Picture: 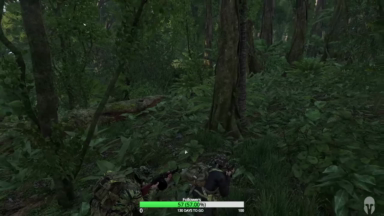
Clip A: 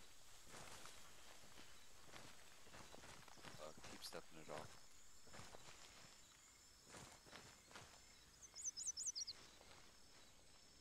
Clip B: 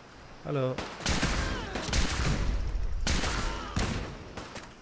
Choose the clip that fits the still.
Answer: A